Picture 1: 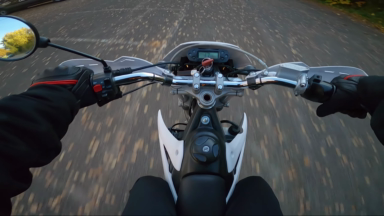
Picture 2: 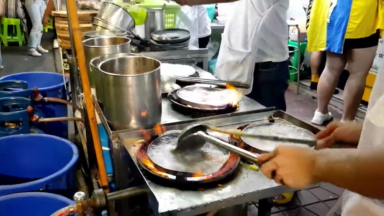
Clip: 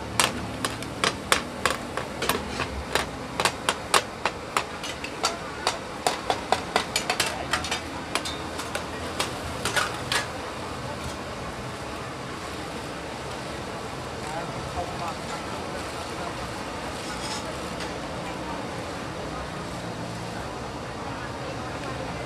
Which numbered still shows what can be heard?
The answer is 2